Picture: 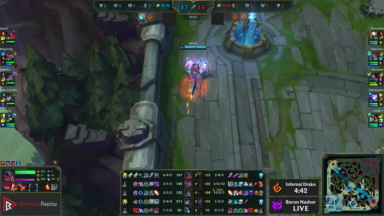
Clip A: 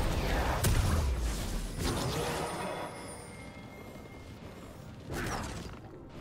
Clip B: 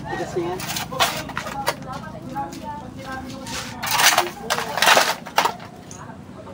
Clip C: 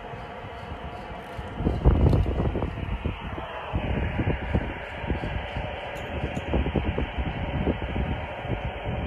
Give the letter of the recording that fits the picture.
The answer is A